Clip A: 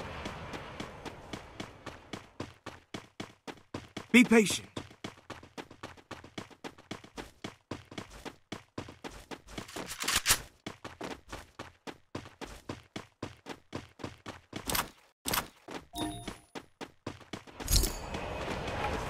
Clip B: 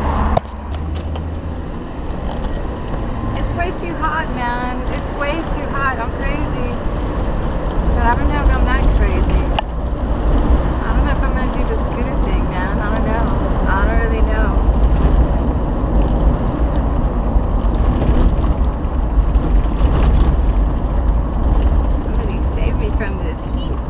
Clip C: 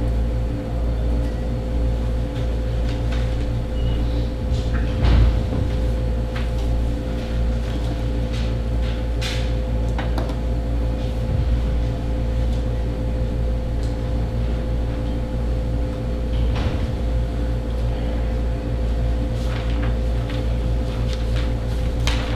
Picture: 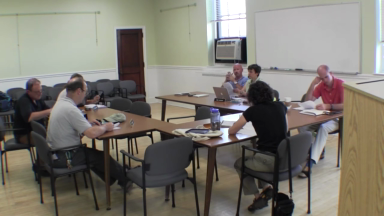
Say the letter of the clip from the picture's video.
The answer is C